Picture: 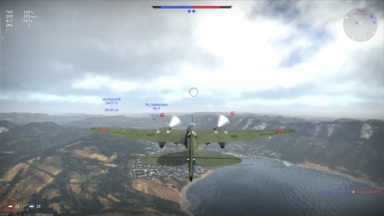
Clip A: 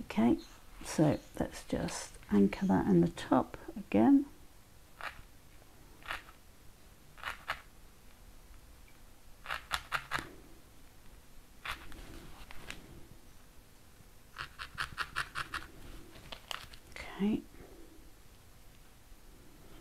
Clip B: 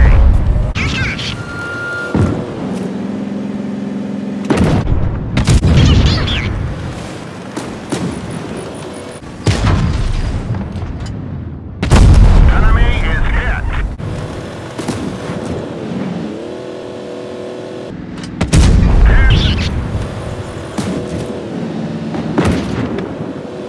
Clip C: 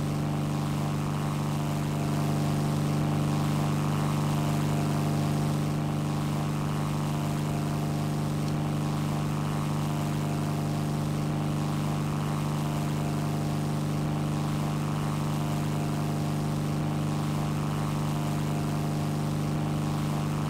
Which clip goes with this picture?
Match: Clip C